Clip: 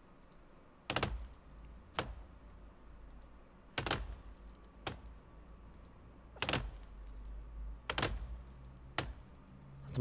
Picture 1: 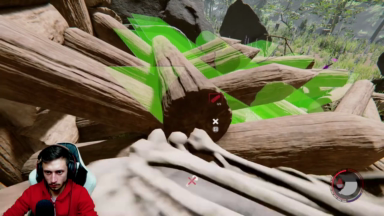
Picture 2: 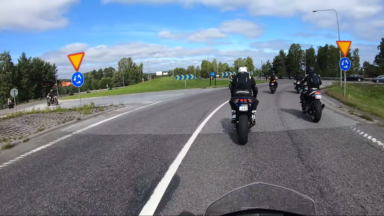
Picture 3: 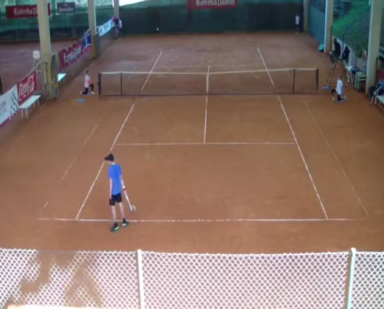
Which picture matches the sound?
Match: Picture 1